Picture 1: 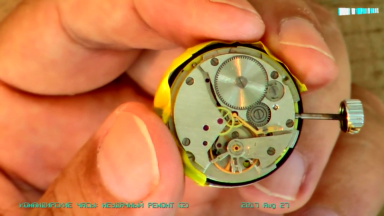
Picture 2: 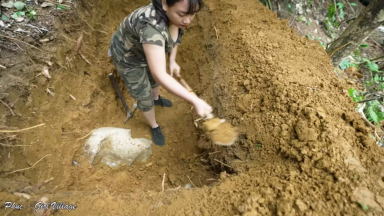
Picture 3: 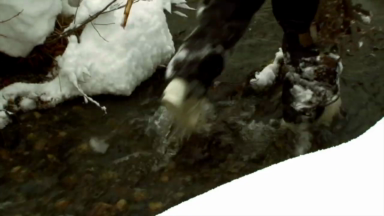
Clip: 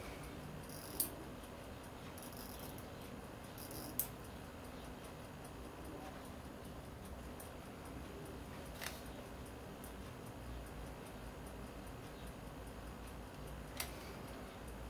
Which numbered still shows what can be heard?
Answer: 1